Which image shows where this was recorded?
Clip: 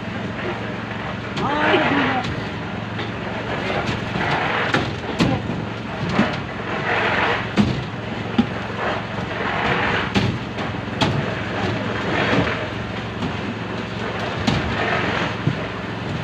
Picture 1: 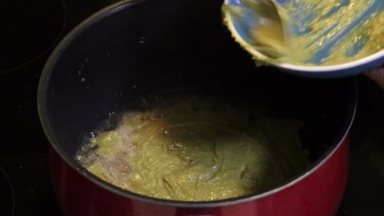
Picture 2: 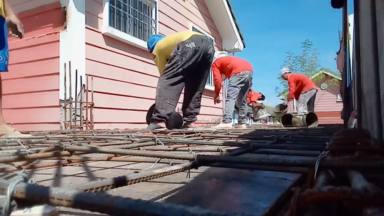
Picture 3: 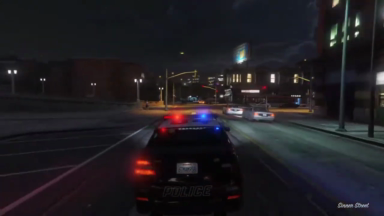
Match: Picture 2